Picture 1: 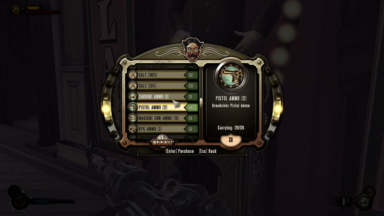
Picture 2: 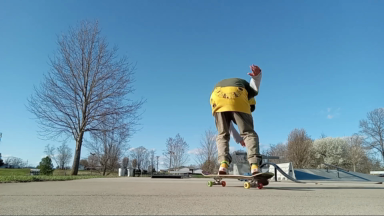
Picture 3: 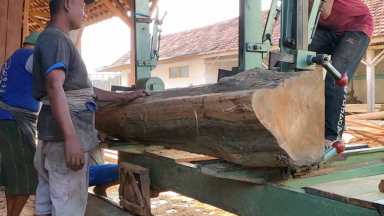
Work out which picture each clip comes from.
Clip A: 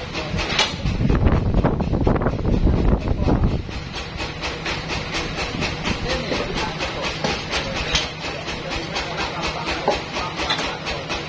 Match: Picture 3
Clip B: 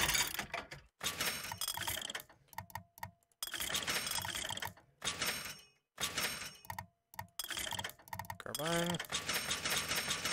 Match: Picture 1